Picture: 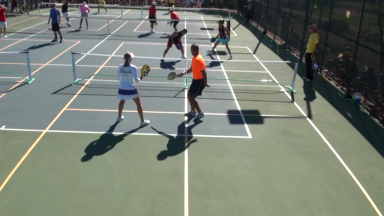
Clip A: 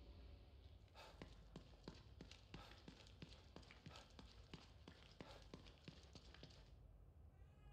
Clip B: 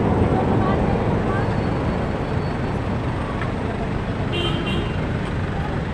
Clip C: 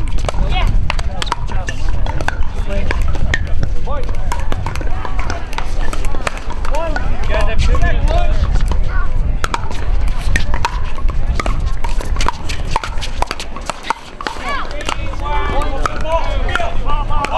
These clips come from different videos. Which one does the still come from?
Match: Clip C